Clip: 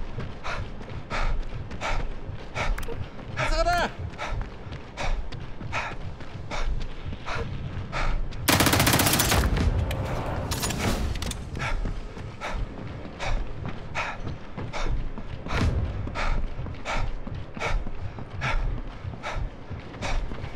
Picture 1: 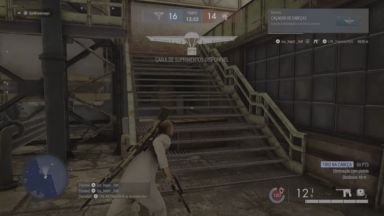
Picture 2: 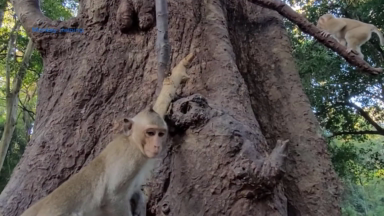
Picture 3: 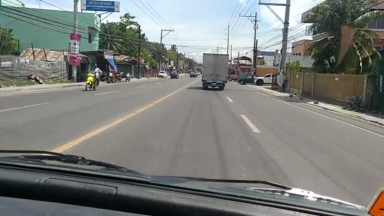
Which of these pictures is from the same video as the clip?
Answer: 1